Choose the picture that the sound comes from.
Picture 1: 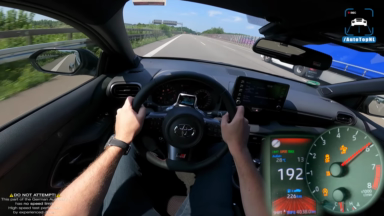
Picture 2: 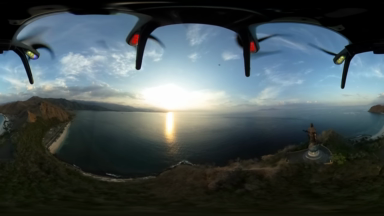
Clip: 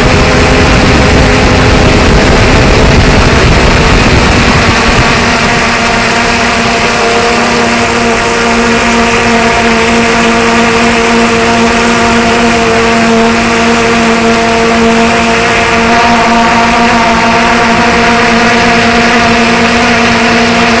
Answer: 2